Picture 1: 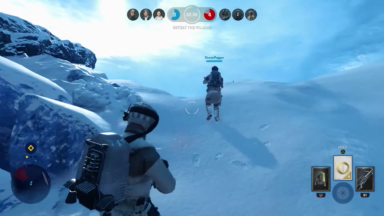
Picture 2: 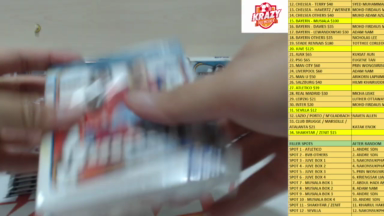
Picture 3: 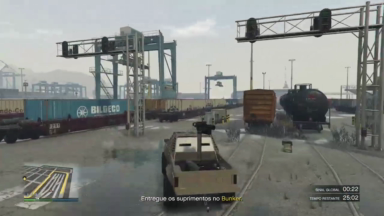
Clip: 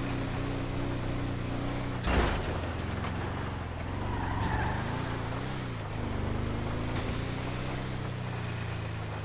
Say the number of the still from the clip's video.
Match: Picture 3